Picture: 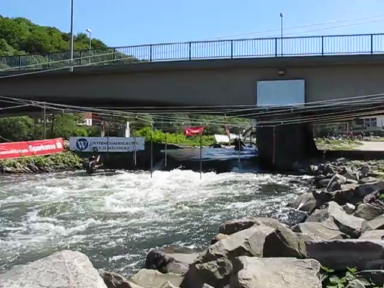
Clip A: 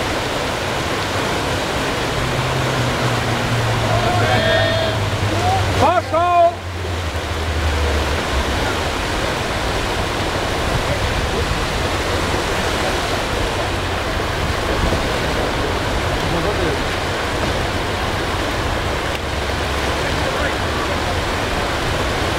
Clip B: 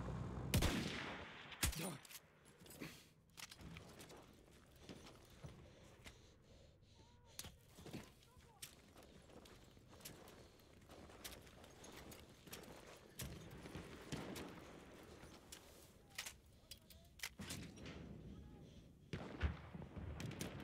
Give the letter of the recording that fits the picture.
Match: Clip A